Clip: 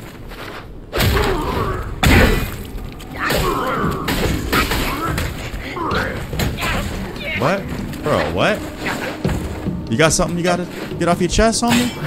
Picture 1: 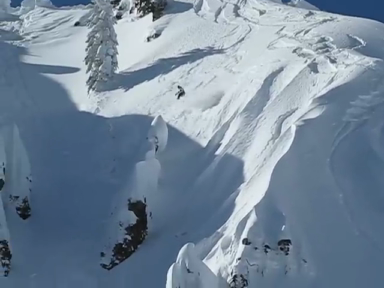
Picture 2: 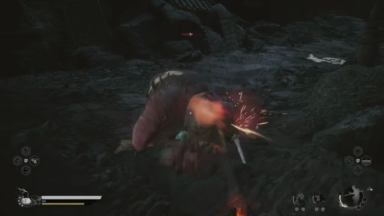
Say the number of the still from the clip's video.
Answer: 2